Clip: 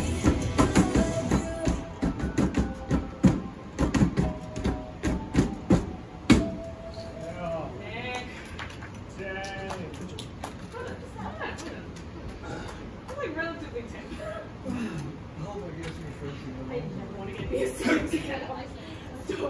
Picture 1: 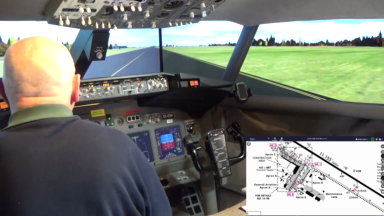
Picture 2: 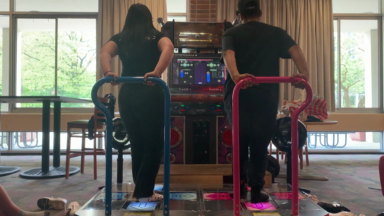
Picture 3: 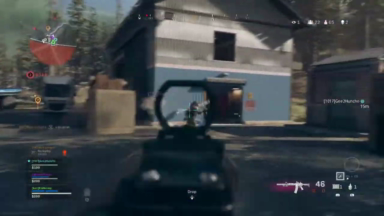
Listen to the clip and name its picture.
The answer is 2